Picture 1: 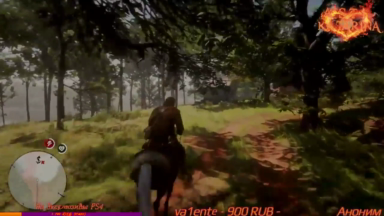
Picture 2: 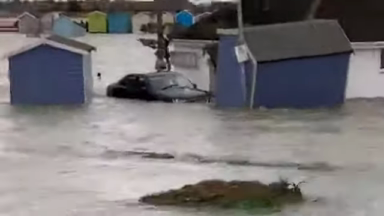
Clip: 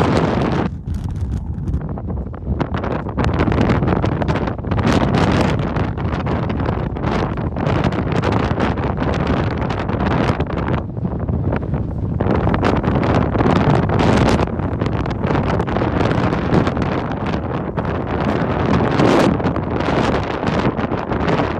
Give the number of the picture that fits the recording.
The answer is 2